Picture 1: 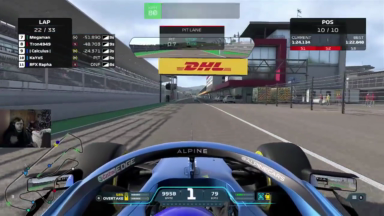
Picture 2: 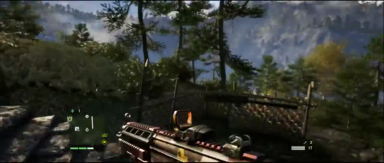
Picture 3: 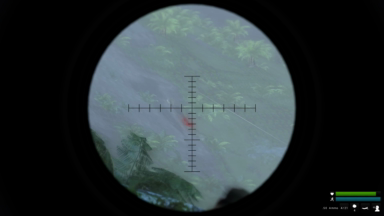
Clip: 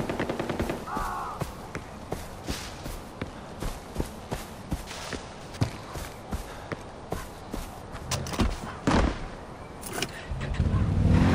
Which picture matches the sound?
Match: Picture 2